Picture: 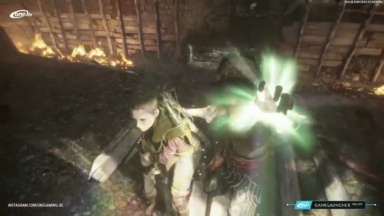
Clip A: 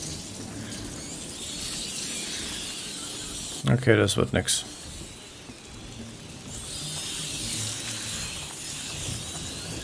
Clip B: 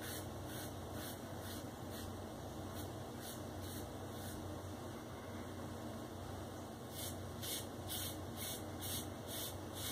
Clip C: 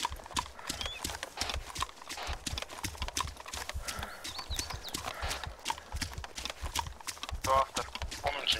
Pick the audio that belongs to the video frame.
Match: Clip A